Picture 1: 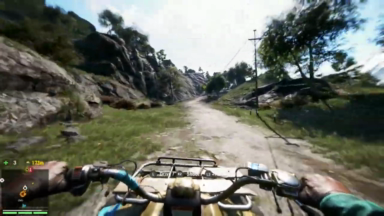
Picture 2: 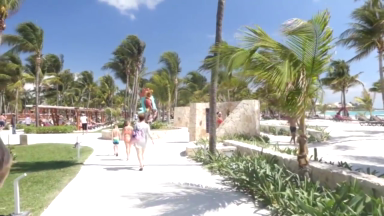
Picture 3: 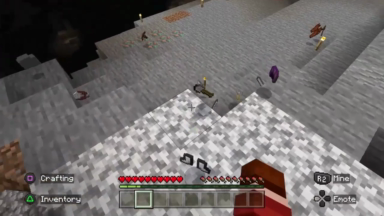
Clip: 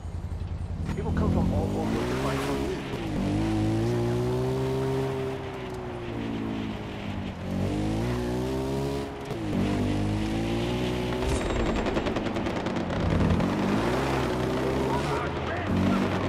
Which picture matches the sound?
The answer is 1